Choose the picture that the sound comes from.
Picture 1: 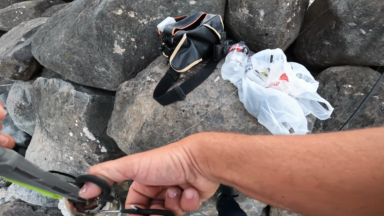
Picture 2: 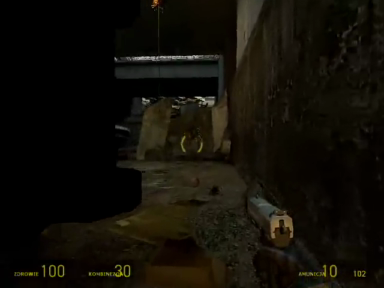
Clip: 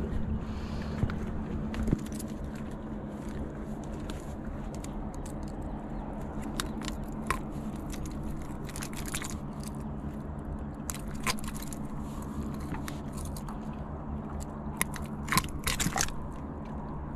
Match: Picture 1